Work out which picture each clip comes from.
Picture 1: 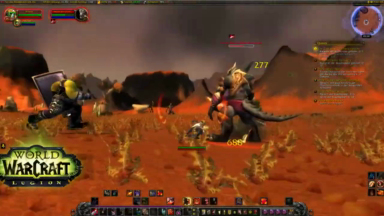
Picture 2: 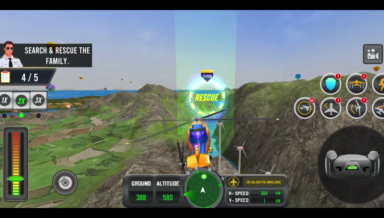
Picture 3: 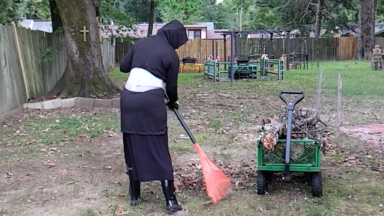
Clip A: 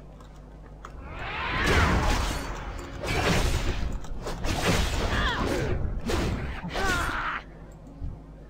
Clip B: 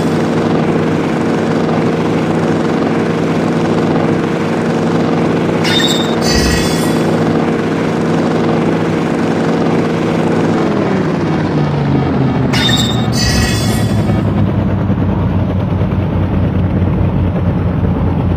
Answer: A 1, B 2